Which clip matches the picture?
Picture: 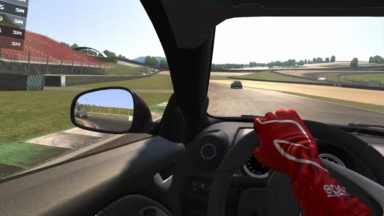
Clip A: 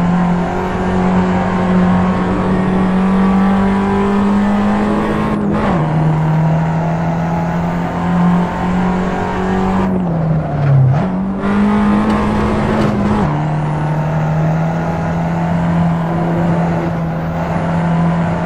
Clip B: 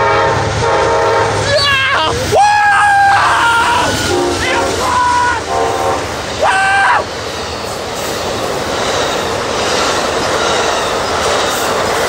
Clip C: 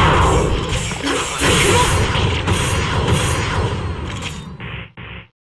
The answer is A